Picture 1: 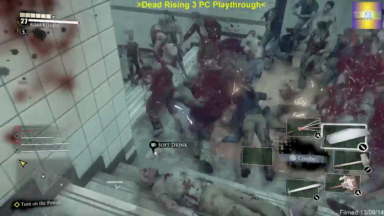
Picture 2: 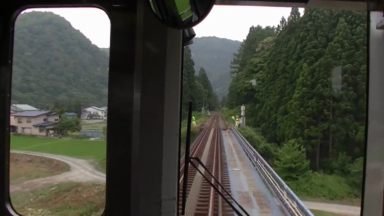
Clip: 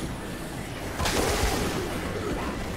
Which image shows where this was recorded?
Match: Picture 1